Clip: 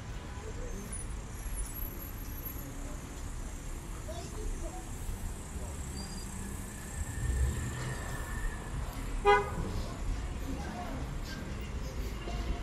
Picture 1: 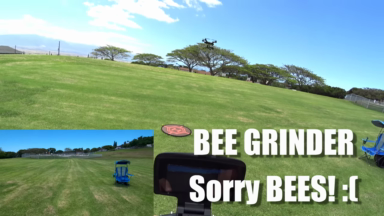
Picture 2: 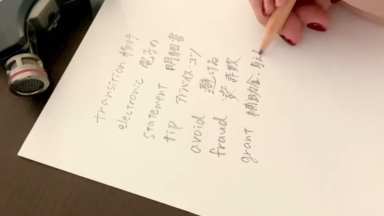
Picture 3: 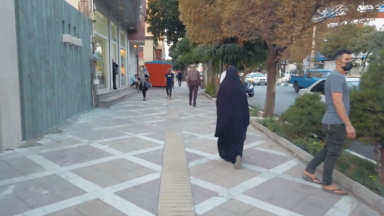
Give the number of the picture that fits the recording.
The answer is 3